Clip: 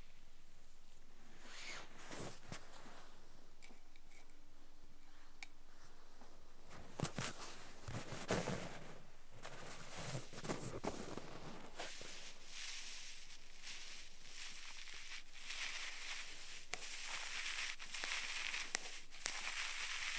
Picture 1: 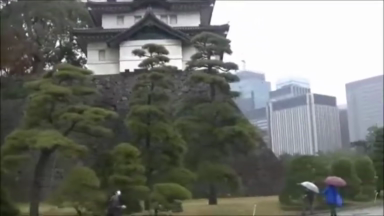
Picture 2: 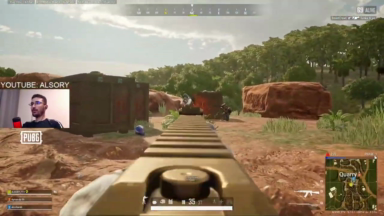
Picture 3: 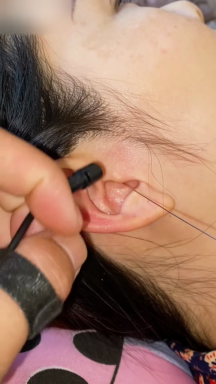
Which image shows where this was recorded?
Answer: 3